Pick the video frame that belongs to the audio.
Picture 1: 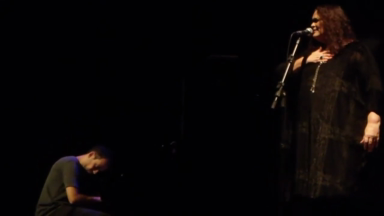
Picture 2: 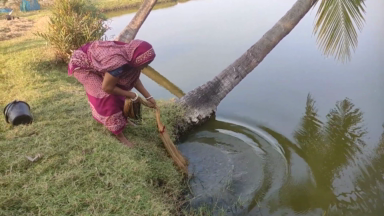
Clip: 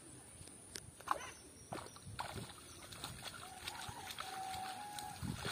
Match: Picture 2